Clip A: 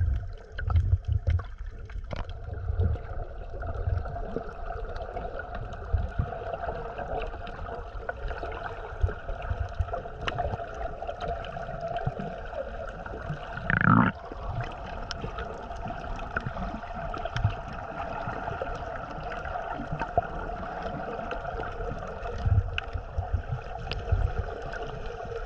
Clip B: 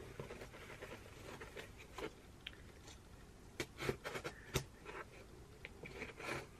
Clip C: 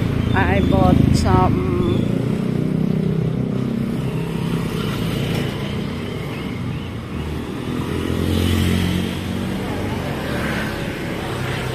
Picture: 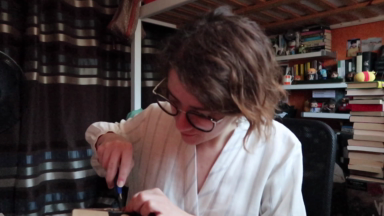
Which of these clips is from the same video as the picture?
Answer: B